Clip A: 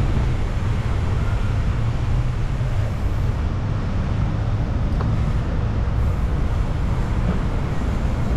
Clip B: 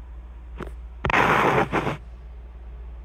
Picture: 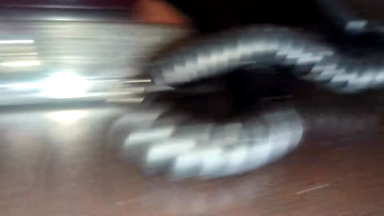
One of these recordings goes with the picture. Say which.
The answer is B